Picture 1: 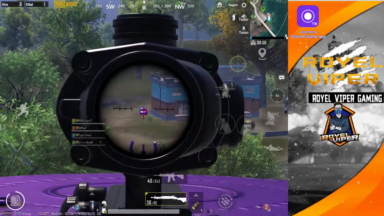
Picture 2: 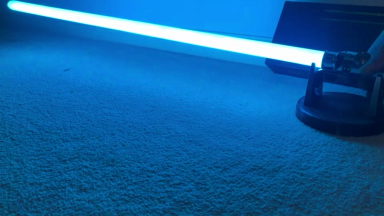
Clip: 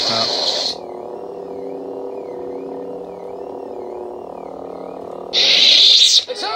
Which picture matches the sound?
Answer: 2